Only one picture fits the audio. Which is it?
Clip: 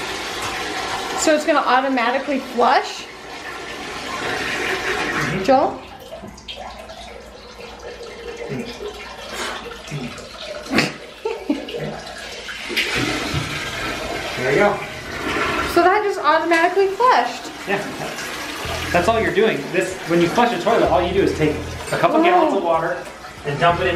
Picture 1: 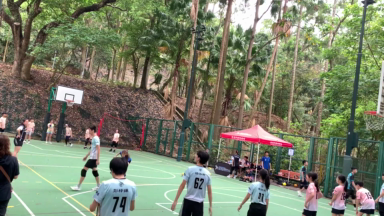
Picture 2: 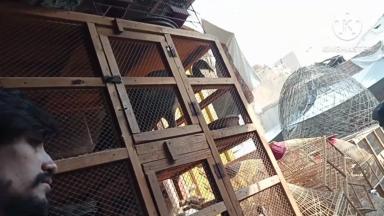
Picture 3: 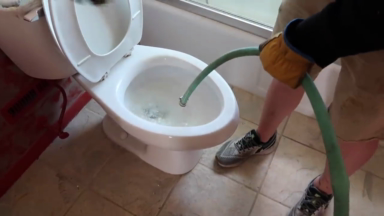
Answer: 3